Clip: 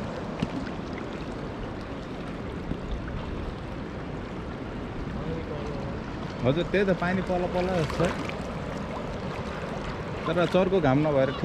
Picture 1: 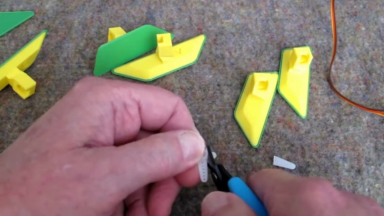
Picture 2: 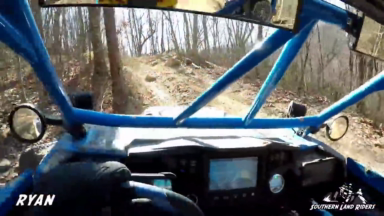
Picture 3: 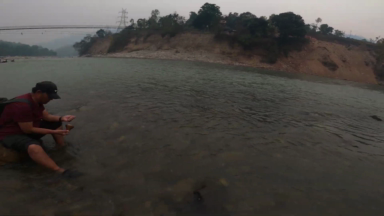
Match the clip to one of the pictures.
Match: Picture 3